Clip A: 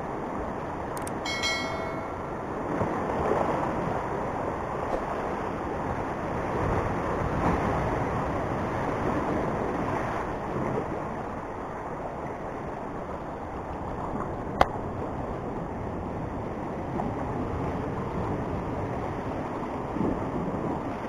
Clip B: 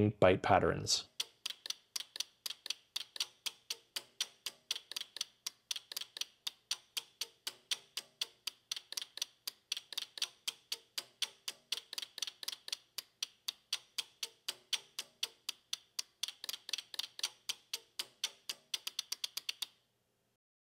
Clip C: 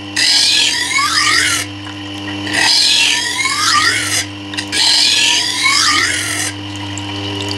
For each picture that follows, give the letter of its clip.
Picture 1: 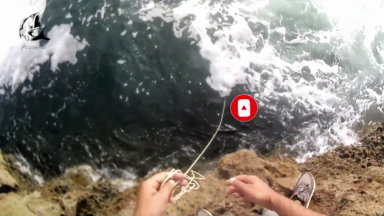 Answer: A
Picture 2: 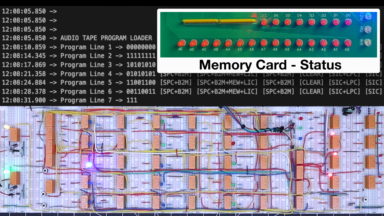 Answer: B